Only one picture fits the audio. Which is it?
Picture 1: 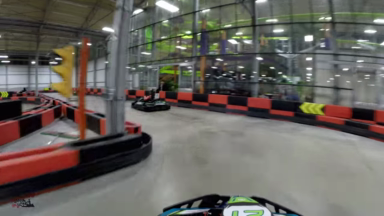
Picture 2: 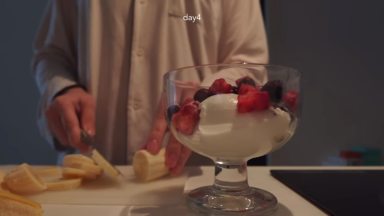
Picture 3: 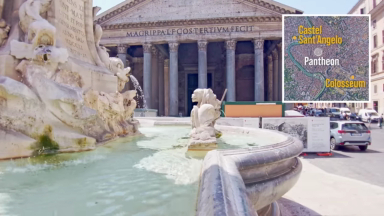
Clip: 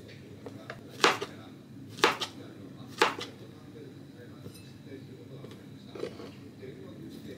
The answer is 2